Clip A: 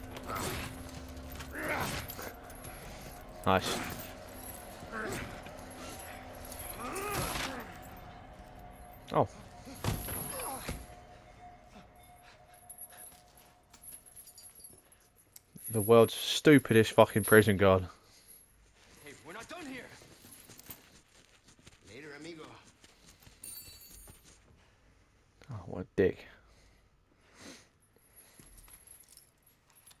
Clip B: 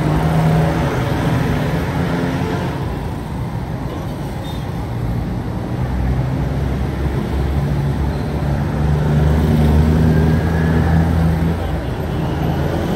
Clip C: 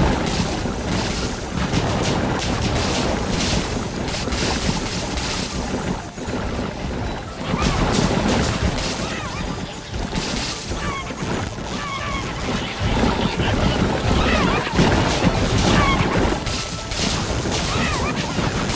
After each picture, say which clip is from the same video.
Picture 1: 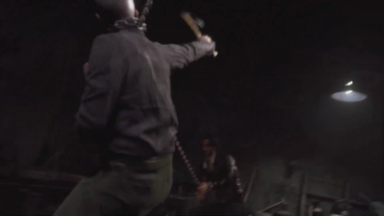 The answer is A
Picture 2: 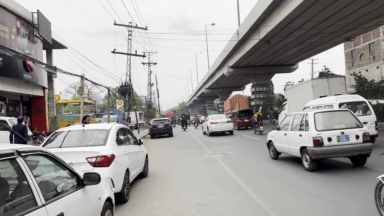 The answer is B